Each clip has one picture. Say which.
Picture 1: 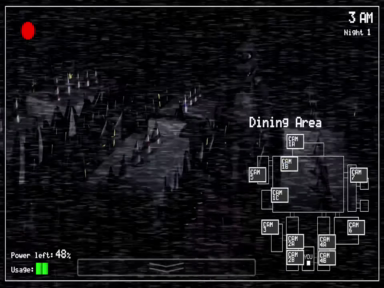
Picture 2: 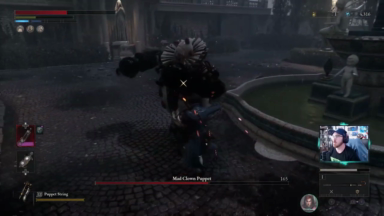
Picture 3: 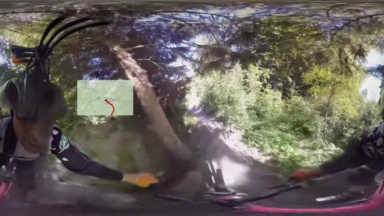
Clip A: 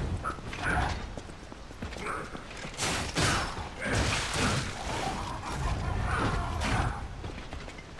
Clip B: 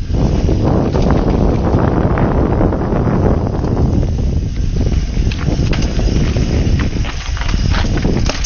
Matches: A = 2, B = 3